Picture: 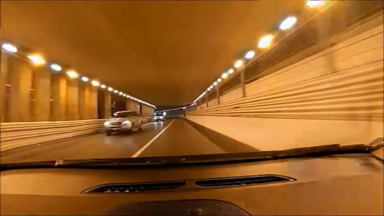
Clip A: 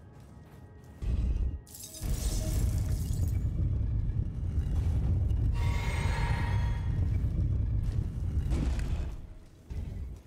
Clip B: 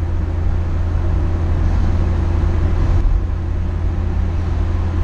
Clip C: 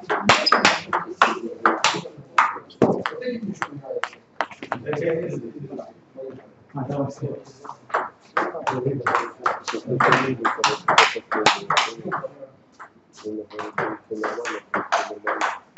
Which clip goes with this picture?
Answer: B